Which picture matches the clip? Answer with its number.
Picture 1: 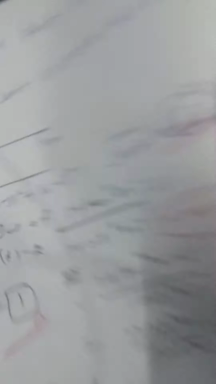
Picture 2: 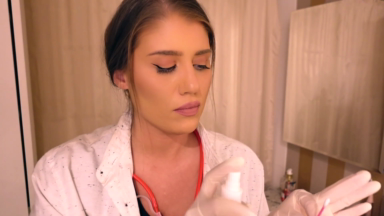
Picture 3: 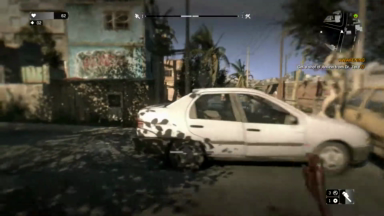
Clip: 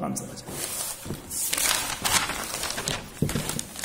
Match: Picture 1